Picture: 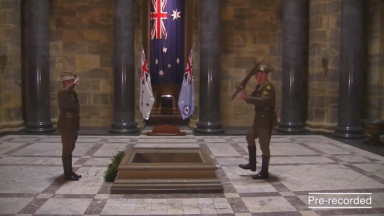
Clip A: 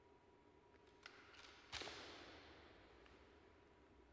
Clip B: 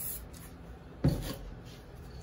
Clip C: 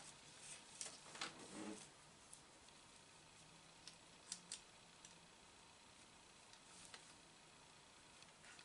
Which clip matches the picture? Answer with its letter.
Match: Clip A